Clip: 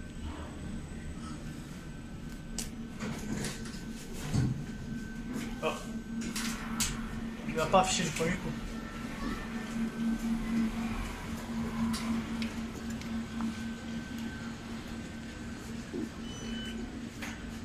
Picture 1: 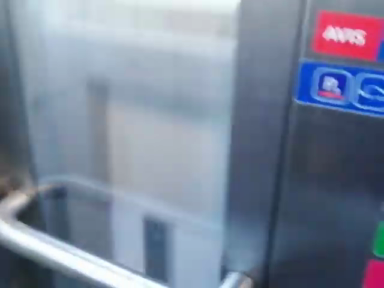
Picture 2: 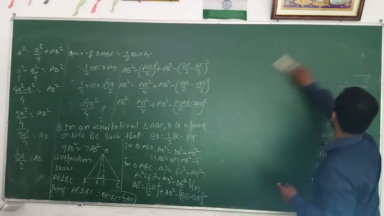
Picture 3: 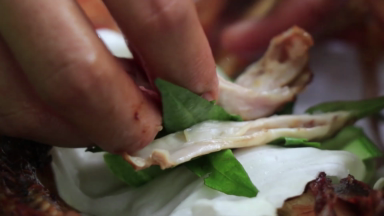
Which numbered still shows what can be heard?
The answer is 1